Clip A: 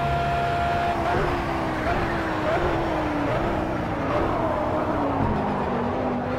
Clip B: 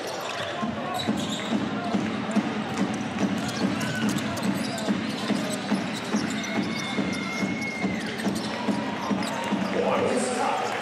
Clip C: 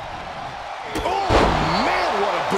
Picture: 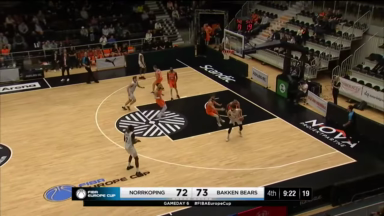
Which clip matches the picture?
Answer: B